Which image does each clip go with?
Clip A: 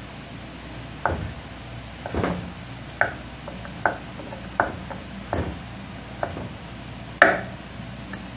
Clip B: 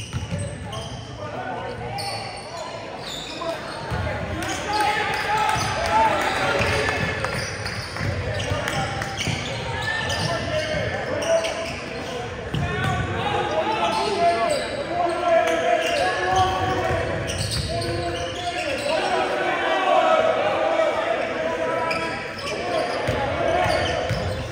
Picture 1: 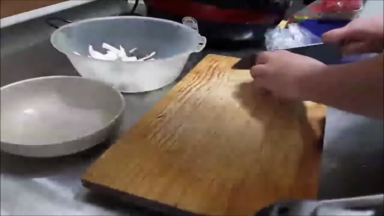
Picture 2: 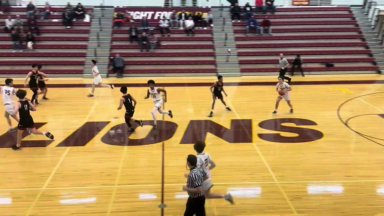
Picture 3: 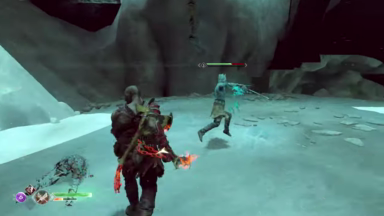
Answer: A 1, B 2